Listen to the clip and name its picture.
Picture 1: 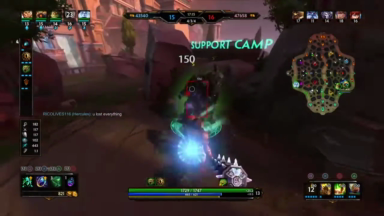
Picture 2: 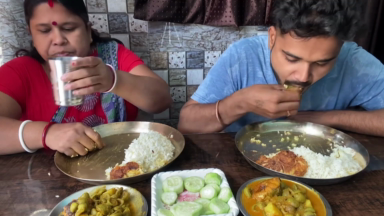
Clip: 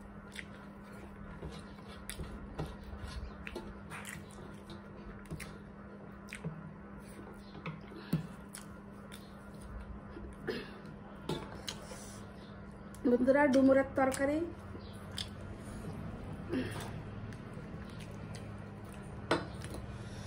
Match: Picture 2